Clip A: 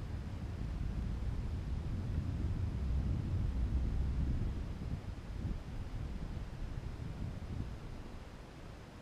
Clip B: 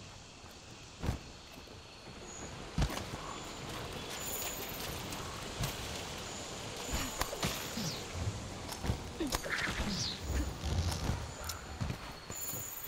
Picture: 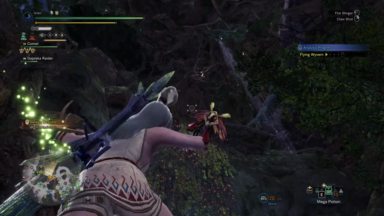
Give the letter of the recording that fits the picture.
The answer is B